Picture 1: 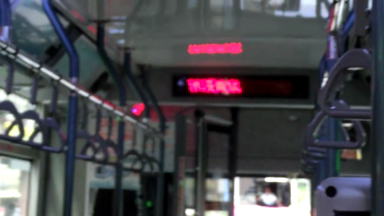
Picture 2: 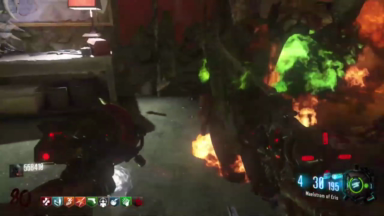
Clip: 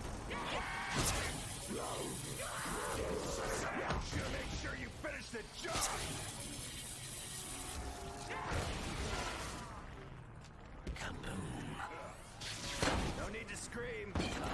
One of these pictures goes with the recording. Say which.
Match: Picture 2